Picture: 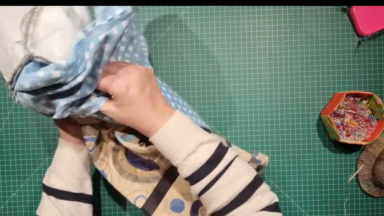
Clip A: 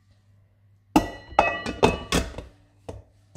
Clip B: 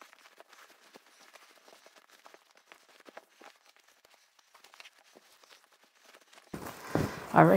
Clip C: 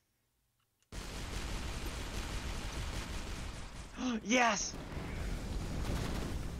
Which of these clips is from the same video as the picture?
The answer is B